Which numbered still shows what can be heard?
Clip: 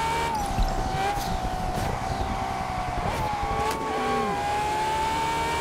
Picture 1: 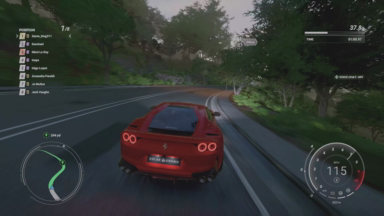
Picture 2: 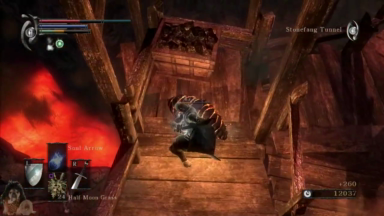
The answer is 1